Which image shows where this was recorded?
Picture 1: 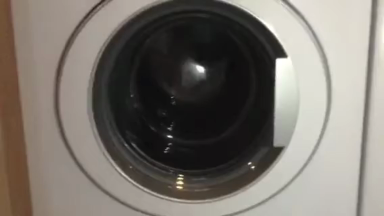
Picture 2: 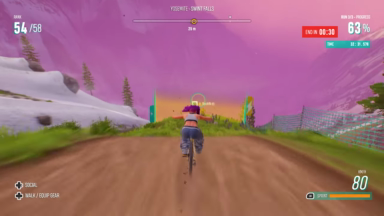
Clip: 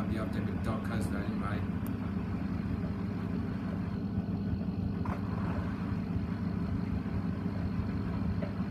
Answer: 1